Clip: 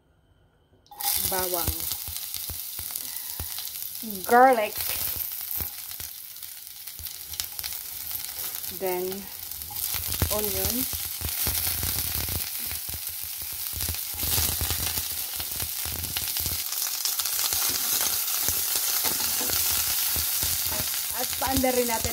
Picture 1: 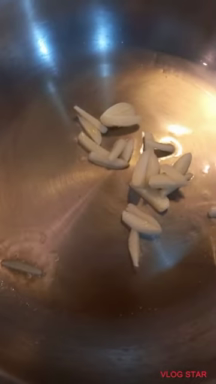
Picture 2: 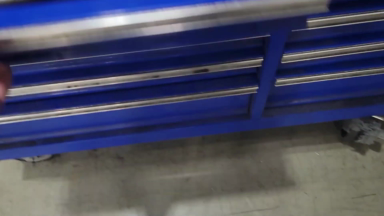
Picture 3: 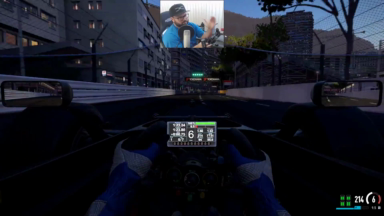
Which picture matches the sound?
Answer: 1